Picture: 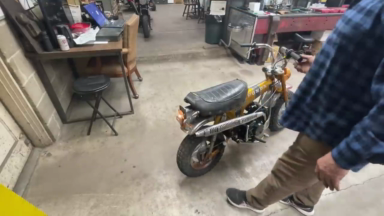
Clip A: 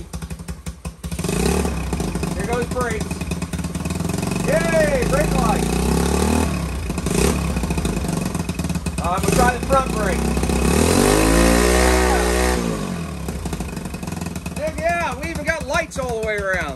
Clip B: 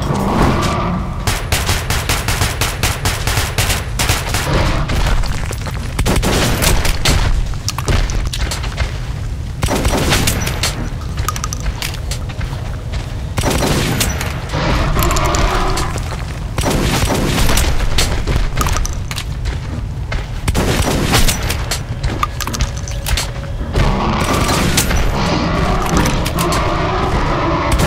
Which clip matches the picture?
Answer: A